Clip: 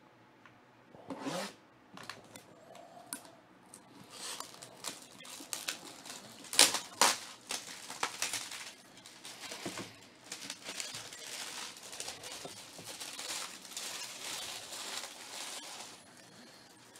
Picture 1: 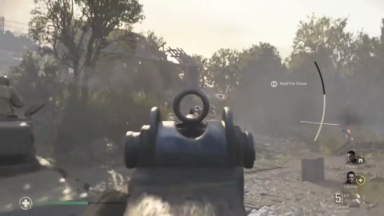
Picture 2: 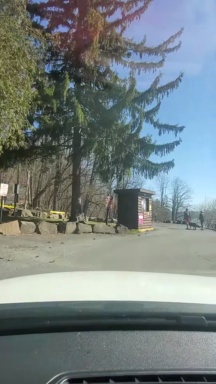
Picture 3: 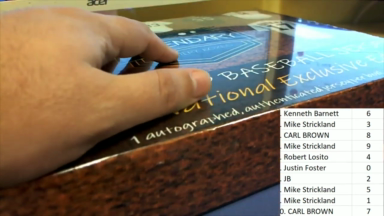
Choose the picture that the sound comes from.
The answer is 3